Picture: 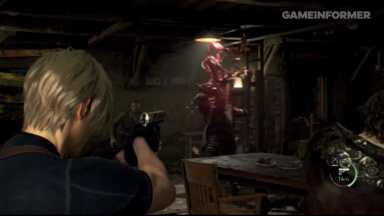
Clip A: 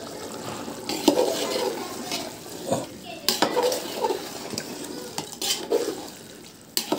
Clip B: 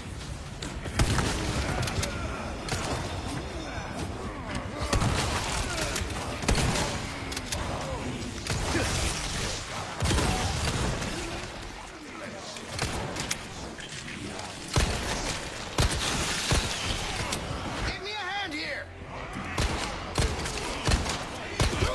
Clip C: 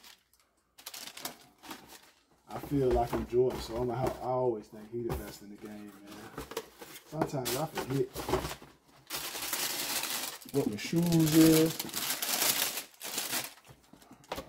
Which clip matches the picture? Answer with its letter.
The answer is B